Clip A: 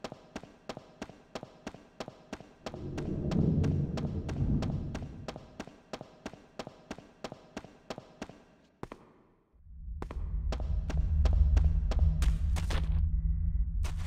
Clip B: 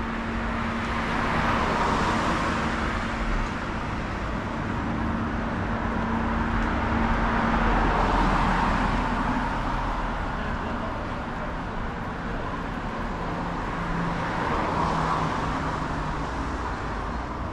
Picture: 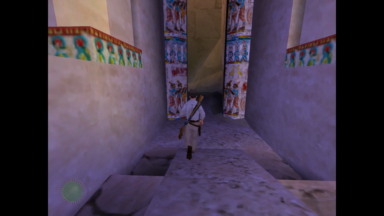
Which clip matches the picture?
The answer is A